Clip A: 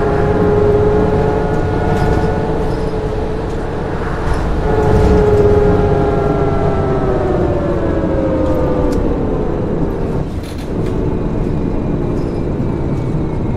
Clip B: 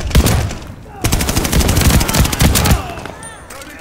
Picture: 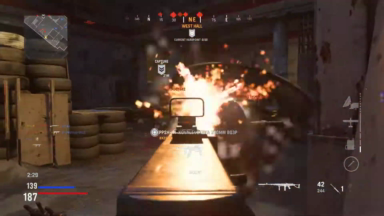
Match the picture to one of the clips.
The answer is B